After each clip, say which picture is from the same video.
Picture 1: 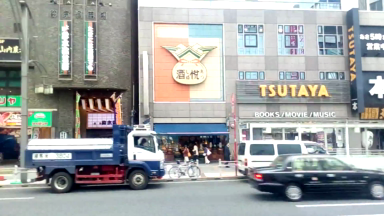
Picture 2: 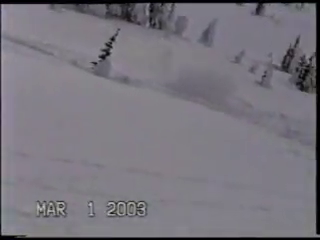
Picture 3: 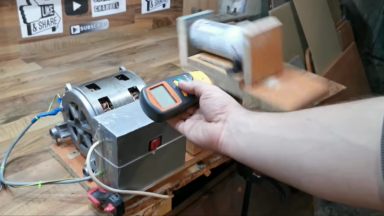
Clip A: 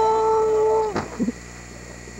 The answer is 2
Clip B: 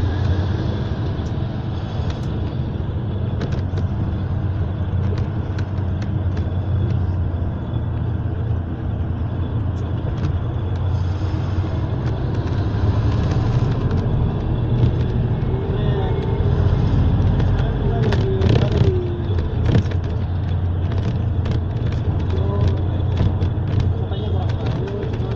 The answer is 1